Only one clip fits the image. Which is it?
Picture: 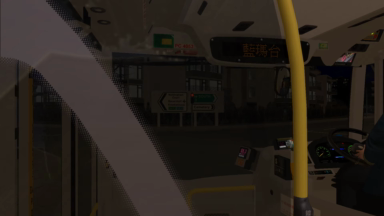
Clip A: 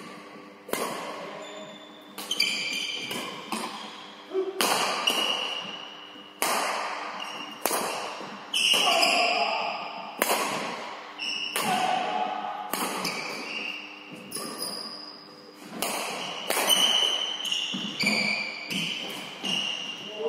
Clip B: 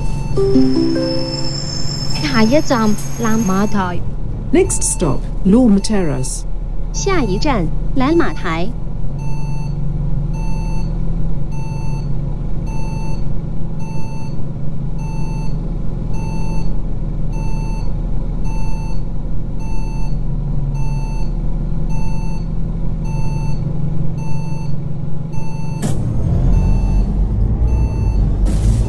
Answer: B